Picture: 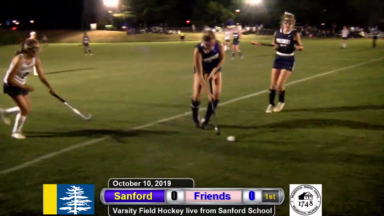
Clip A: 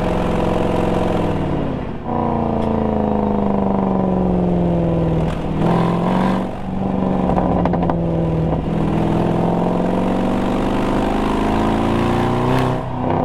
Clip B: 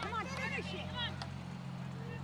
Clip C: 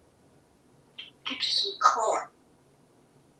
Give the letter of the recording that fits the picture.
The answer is B